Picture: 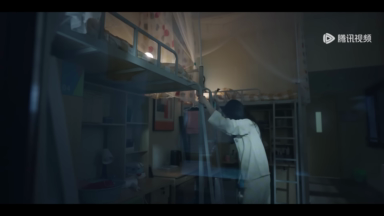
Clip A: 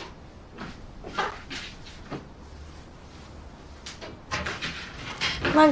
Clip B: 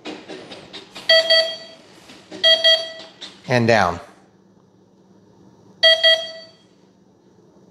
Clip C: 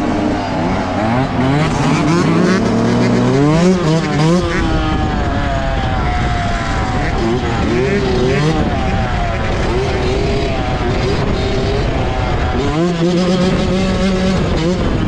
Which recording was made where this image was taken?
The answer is A